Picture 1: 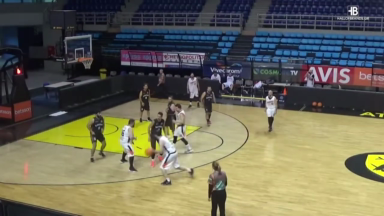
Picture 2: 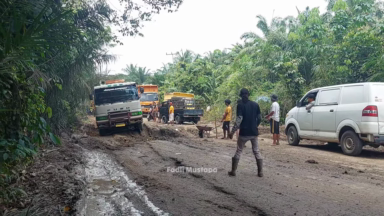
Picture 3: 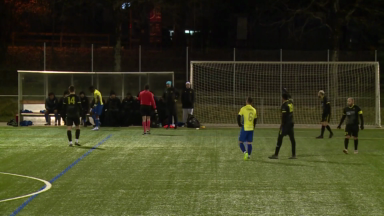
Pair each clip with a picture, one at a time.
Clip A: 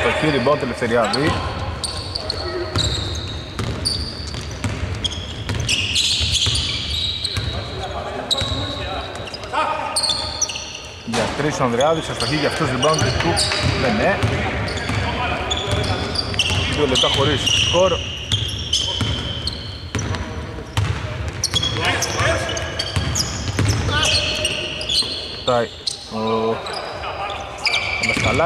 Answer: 1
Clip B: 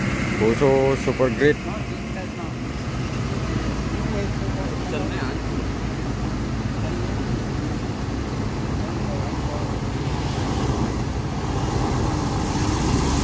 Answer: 2